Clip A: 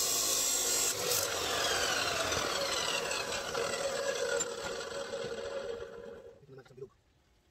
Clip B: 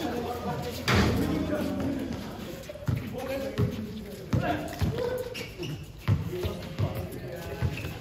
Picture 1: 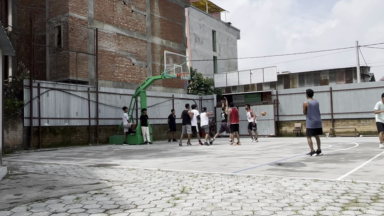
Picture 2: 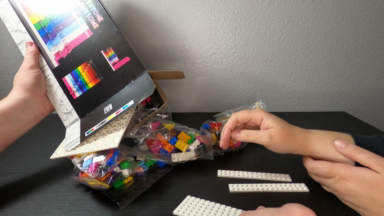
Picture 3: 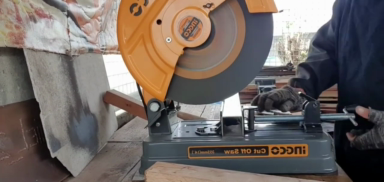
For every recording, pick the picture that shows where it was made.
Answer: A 3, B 1